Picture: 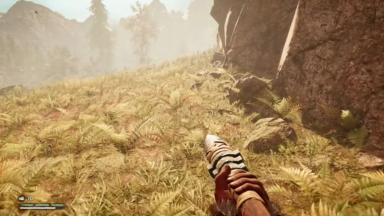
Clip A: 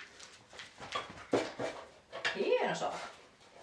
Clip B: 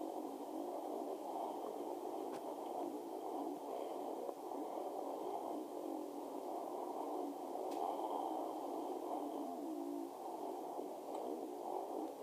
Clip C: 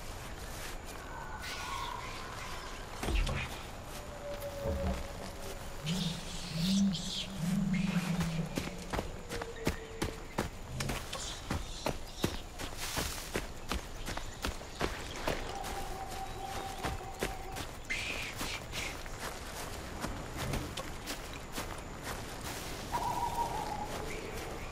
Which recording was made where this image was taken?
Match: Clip C